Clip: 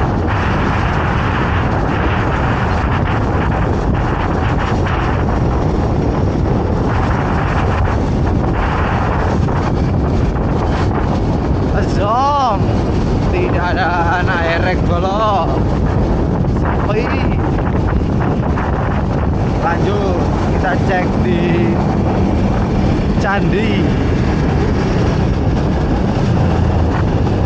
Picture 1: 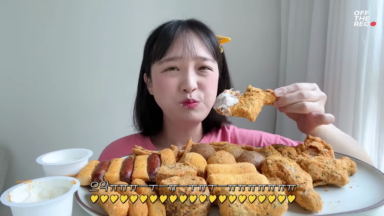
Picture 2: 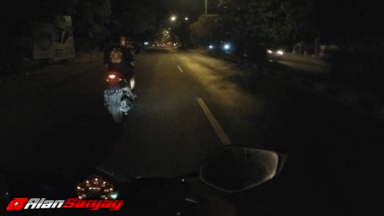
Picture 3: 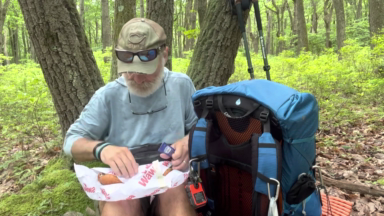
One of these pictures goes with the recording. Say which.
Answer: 2